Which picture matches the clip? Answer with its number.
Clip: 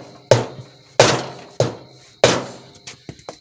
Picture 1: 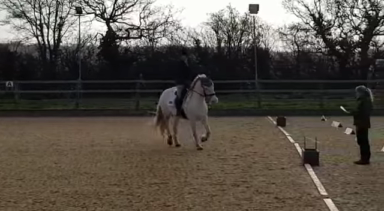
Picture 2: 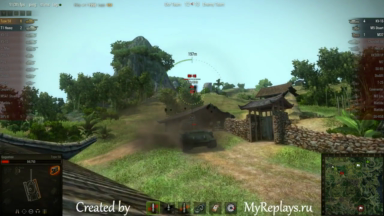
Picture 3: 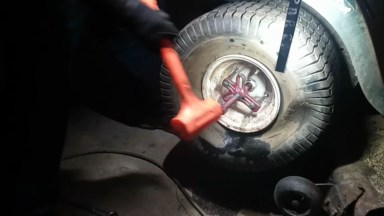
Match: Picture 3